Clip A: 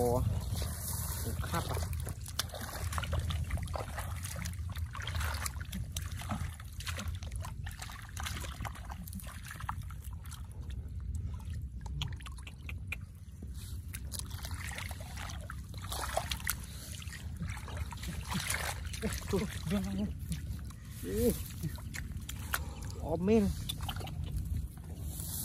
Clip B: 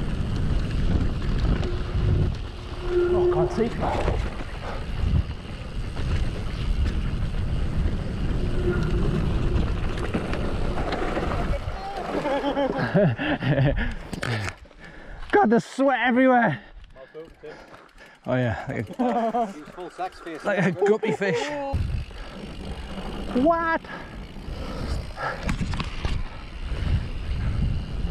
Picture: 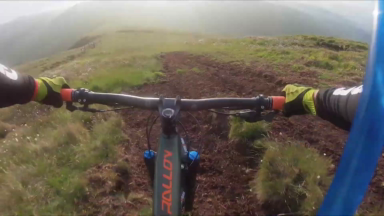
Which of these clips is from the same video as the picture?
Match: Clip B